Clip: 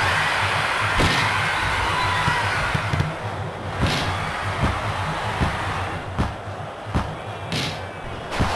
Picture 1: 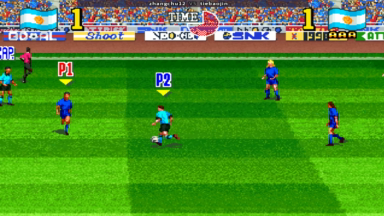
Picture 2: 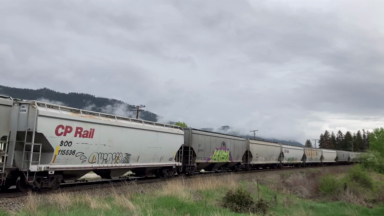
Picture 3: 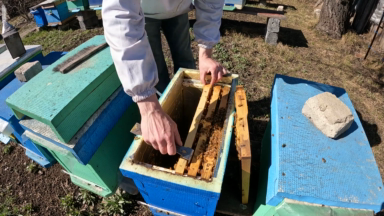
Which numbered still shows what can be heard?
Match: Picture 1